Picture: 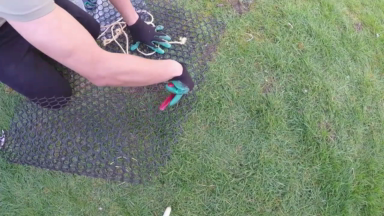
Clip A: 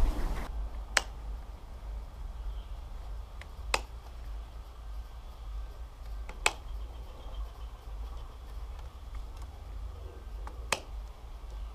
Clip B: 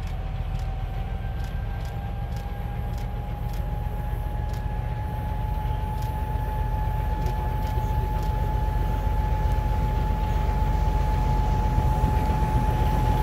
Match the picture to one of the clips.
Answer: A